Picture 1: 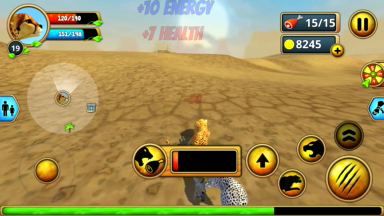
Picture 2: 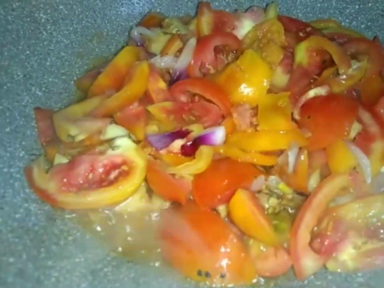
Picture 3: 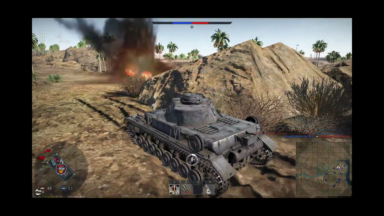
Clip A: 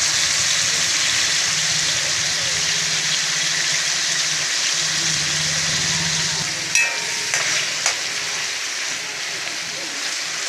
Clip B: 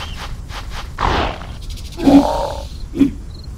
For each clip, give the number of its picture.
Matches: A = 2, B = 1